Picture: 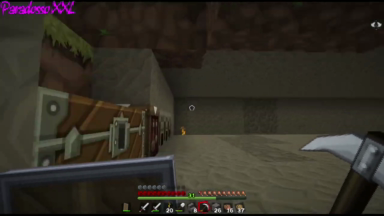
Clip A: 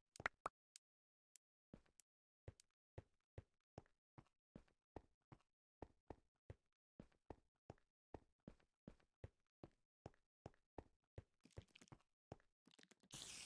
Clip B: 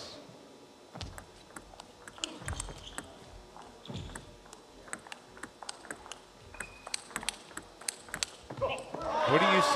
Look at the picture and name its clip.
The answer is A